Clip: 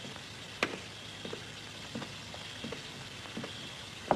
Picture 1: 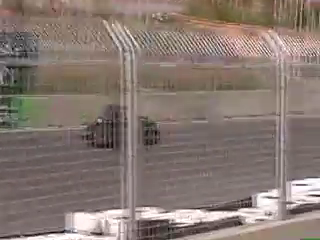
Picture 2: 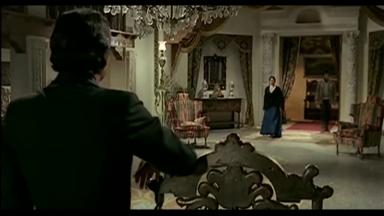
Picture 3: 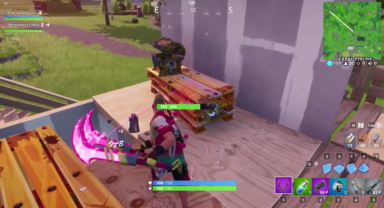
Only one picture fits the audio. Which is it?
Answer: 2